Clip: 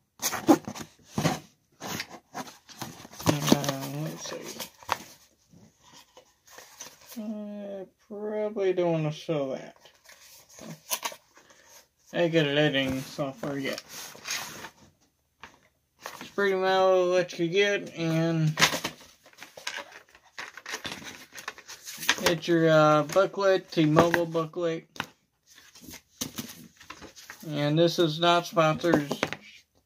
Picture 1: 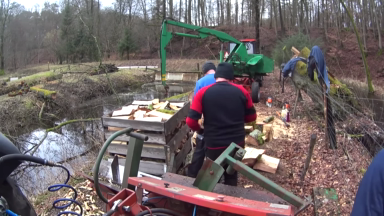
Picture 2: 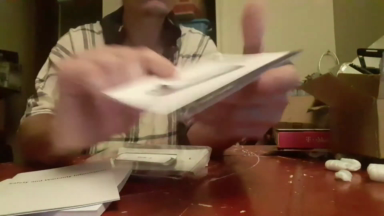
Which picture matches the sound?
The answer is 2